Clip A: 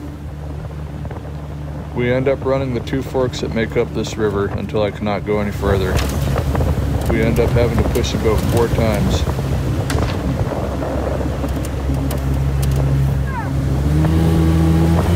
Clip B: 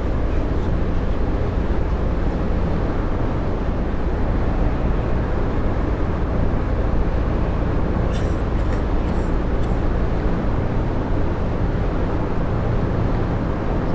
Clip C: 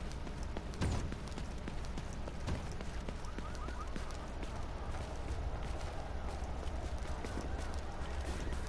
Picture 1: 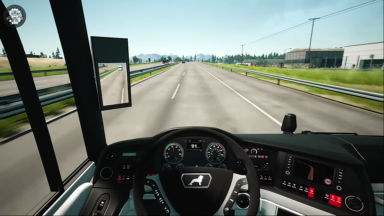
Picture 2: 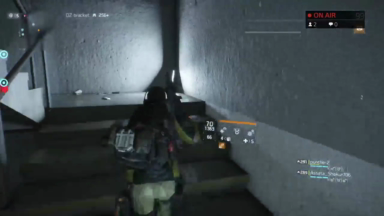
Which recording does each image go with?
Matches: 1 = B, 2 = C